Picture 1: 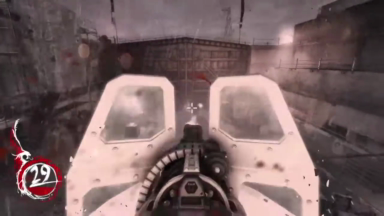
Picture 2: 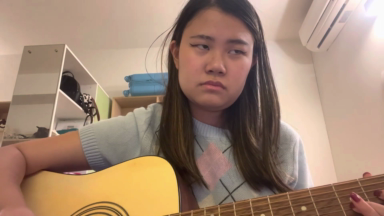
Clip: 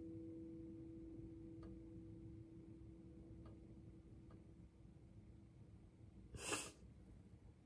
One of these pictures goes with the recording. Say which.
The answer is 2